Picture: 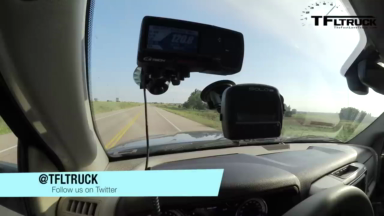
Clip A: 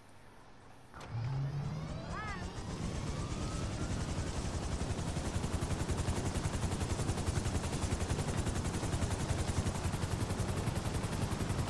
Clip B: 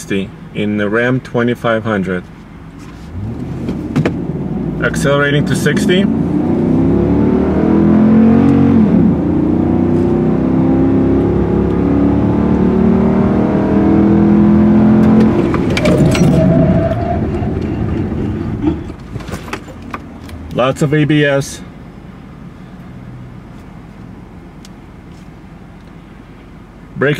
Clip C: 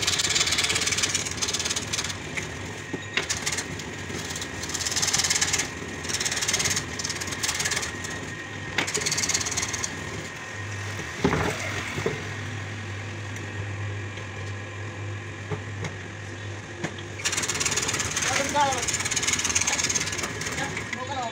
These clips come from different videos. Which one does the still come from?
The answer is B